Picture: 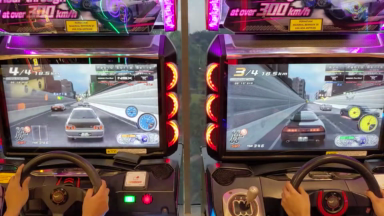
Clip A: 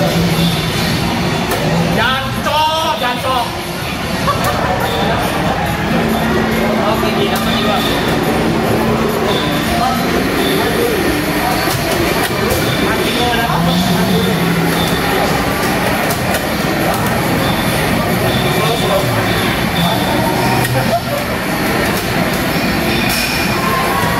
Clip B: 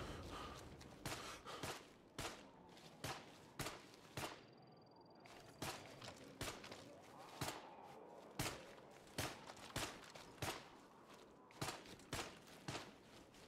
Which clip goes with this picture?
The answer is A